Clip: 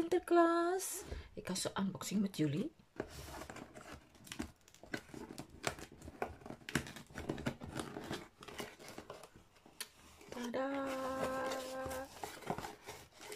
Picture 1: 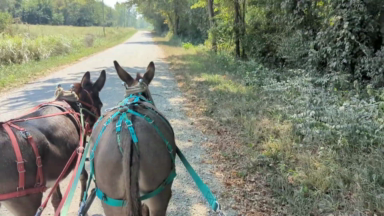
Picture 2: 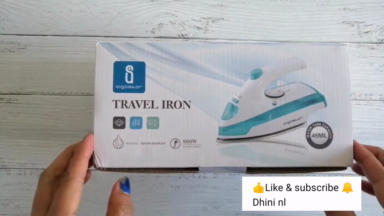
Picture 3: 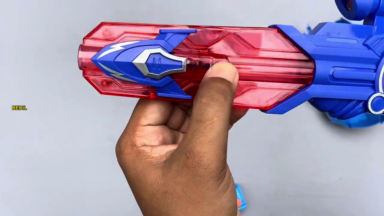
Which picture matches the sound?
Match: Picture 2